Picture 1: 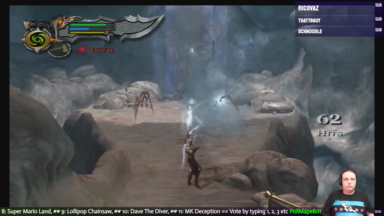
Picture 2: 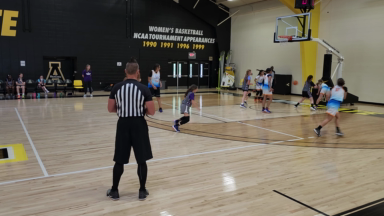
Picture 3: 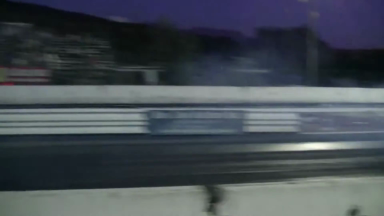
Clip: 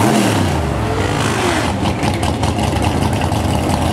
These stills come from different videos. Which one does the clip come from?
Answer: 3